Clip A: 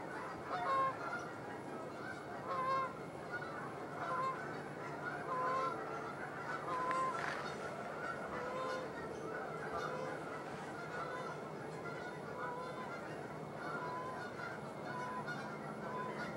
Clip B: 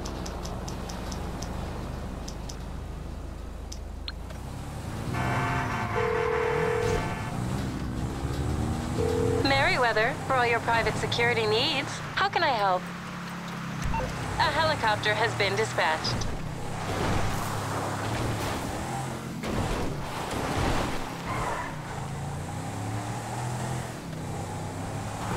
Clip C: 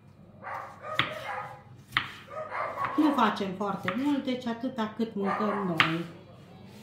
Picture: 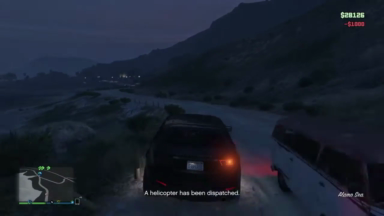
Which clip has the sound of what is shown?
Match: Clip B